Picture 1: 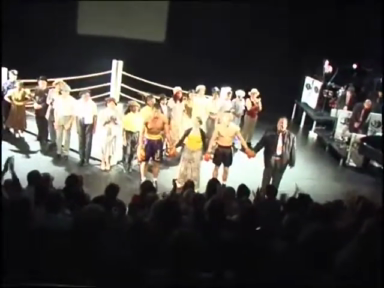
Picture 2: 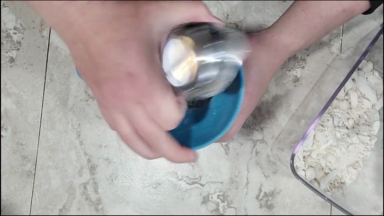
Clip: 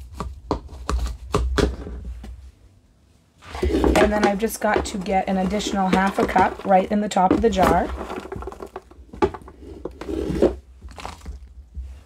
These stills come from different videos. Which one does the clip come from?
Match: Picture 2